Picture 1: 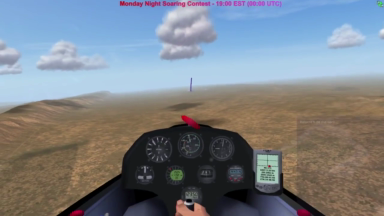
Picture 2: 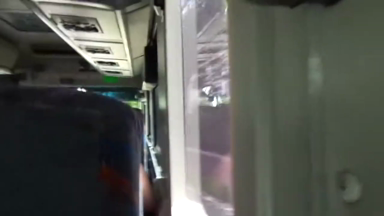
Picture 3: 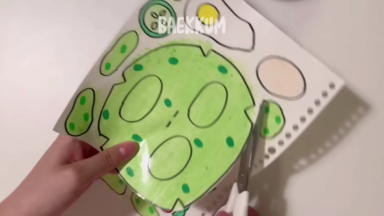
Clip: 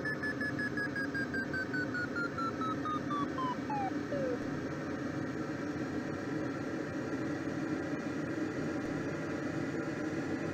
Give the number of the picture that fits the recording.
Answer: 1